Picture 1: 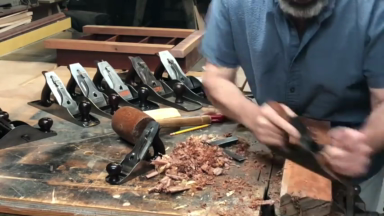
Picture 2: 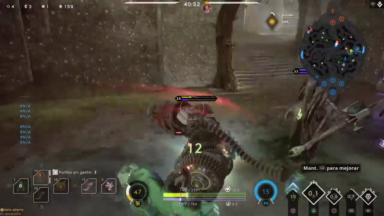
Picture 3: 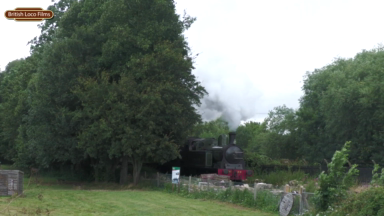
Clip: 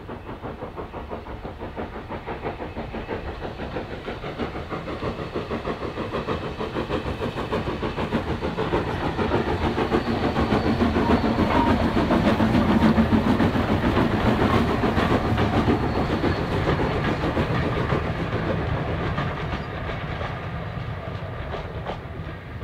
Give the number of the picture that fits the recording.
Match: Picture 3